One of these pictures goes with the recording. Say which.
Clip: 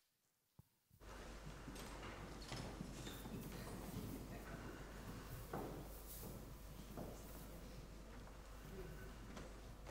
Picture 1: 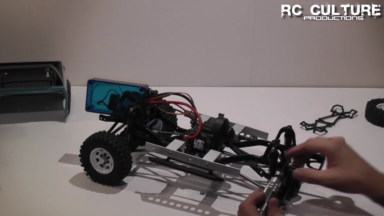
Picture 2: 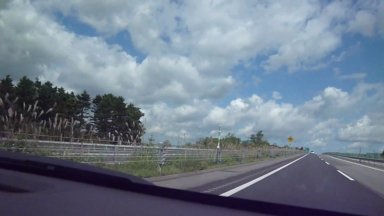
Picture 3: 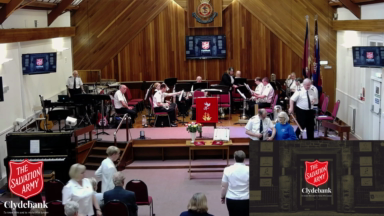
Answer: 3